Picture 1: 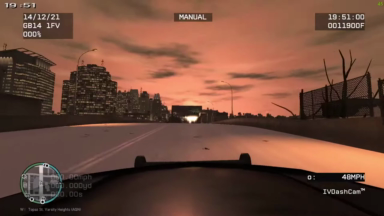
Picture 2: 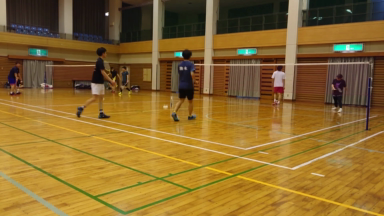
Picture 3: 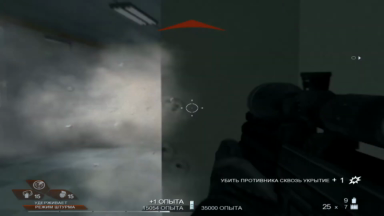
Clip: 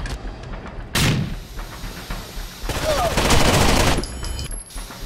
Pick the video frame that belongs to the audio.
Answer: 3